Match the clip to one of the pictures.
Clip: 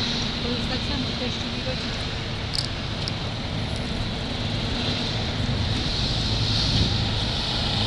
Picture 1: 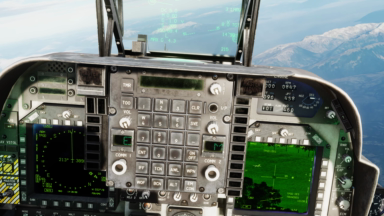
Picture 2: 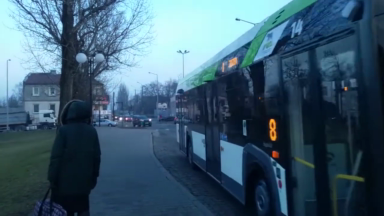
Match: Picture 2